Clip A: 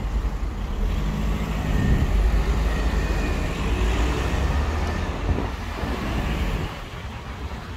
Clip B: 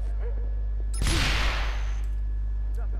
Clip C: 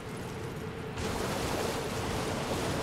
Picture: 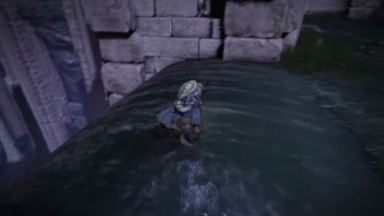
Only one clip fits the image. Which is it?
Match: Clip C